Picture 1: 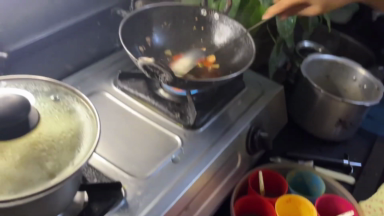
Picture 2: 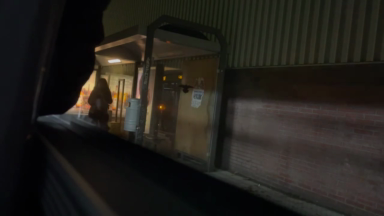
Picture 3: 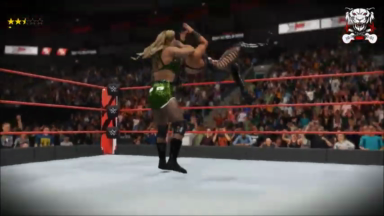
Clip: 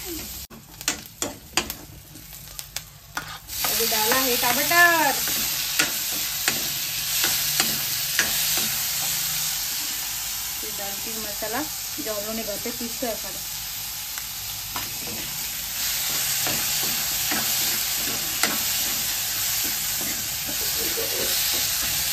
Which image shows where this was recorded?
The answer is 1